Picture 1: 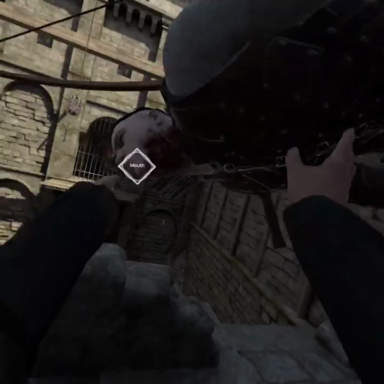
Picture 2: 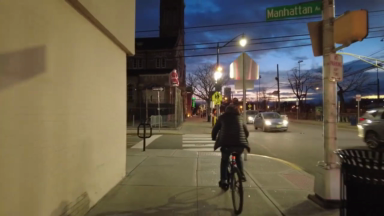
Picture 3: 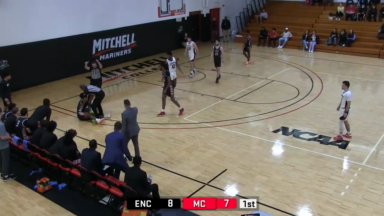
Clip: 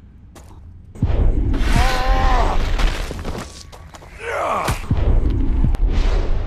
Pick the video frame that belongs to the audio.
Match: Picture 1